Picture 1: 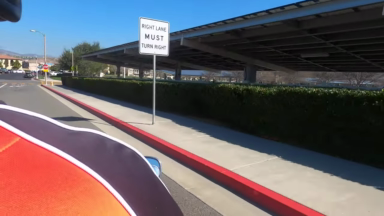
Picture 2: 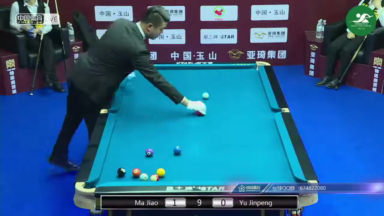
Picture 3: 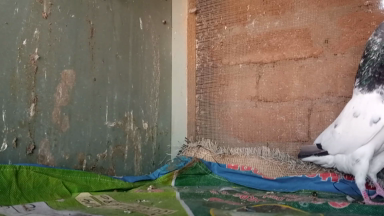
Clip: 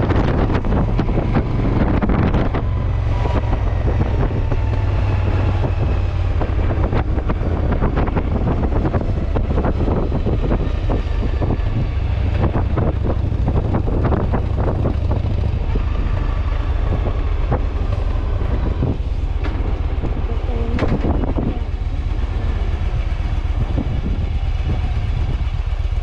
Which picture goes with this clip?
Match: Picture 1